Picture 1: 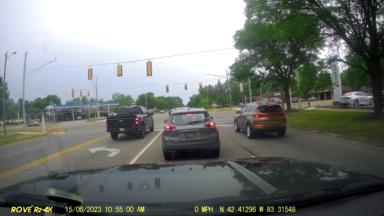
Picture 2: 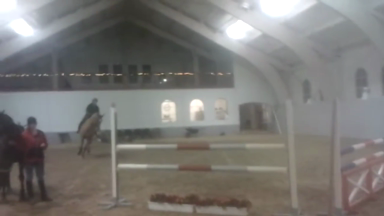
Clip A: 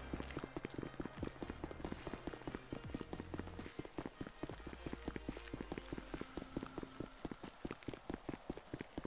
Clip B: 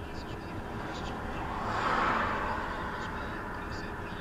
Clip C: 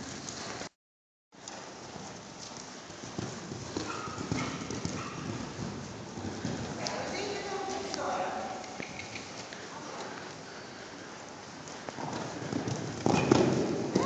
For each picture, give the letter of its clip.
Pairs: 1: B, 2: C